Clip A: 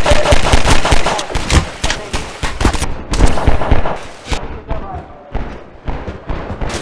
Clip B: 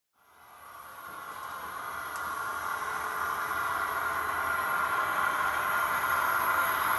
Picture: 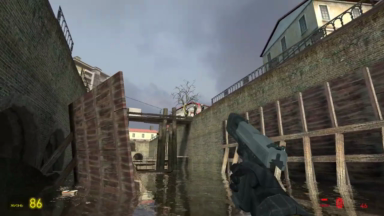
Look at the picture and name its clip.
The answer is A